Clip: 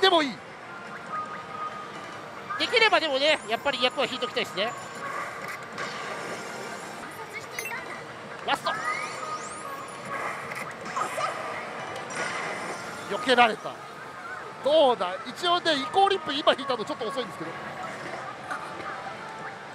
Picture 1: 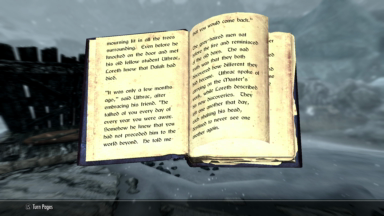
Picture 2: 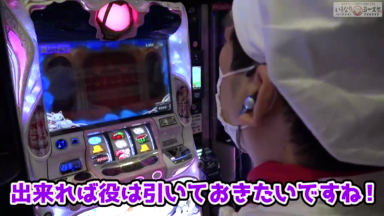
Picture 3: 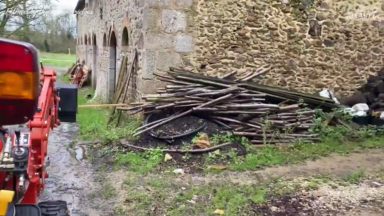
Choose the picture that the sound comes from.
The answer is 2